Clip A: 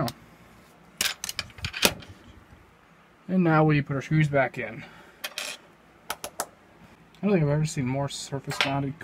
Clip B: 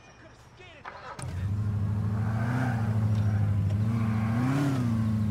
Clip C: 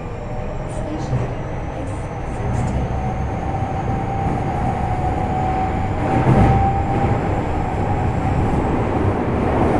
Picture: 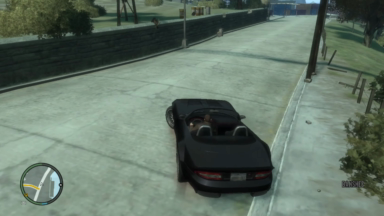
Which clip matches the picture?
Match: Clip B